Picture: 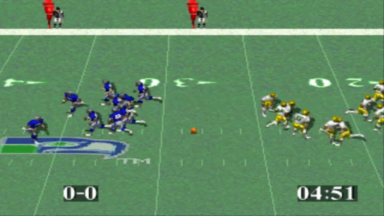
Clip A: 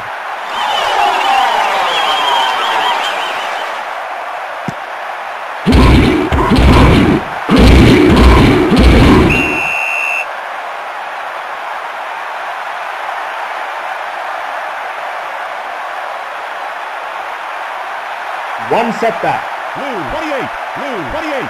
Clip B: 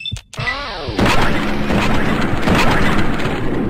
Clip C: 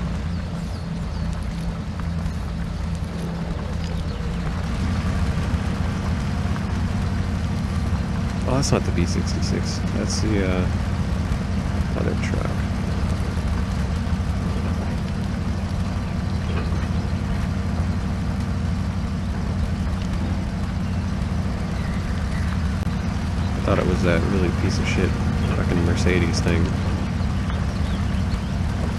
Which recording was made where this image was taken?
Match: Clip A